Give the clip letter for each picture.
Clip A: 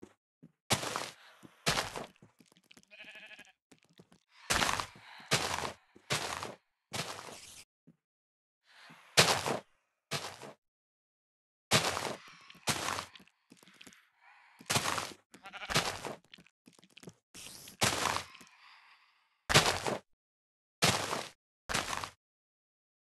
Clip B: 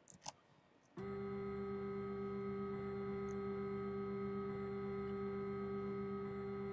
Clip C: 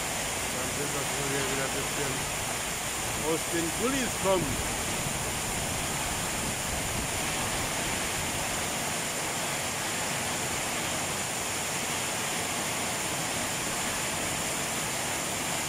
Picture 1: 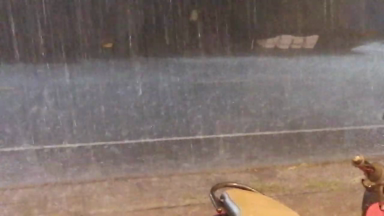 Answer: C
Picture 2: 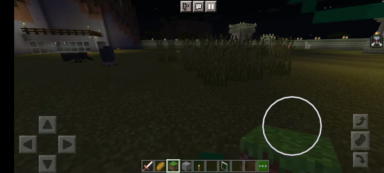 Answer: A